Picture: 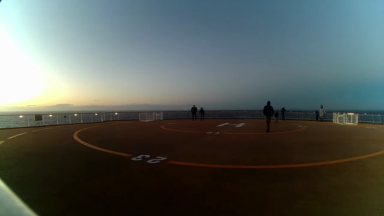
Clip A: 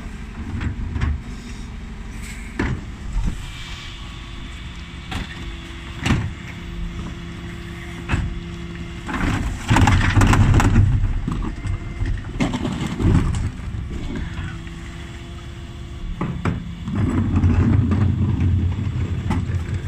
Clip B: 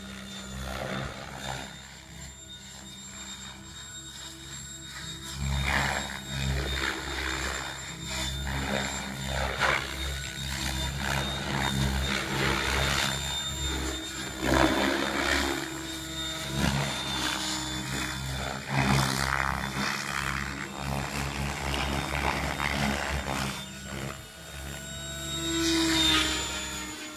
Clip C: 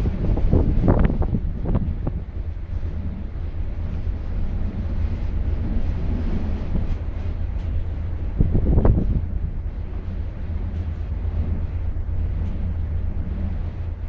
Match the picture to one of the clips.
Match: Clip C